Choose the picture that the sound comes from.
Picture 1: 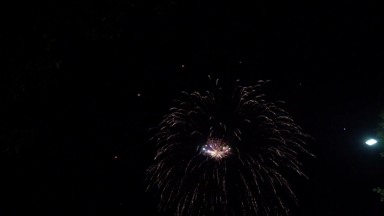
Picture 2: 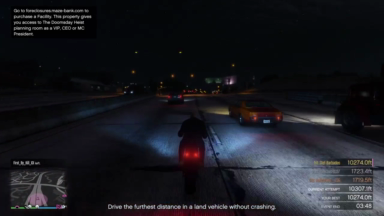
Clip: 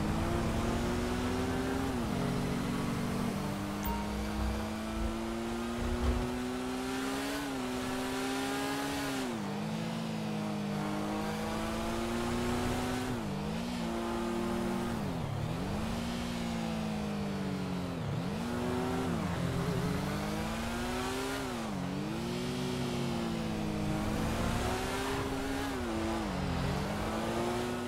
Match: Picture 2